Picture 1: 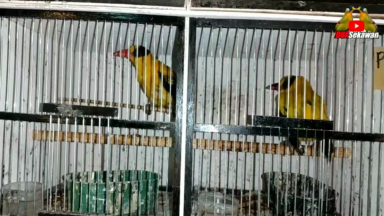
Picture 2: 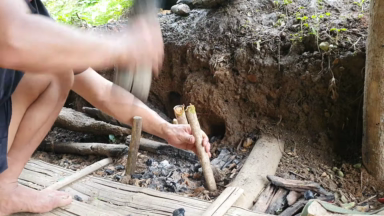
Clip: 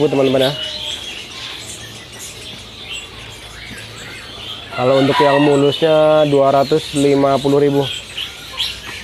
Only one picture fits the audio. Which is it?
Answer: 1